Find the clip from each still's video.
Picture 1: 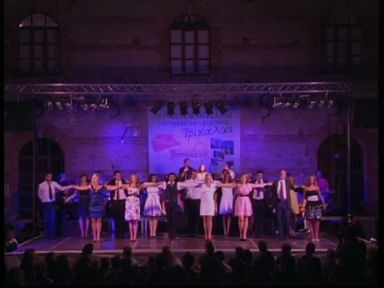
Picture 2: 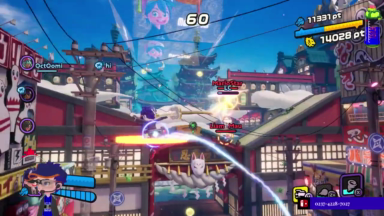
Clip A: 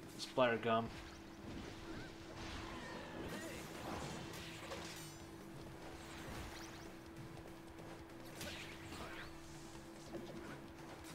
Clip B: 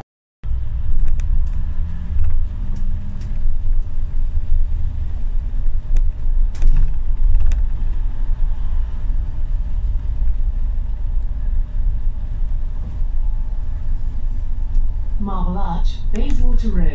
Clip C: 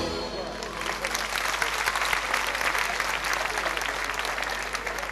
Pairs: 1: C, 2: A